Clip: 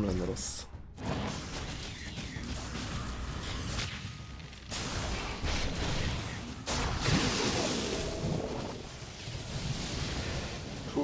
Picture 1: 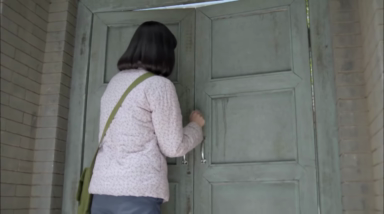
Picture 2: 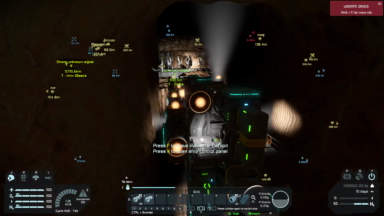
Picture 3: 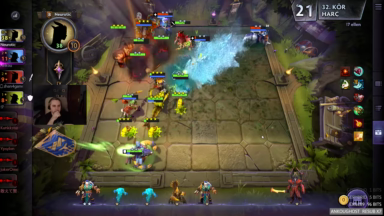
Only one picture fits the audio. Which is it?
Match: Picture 3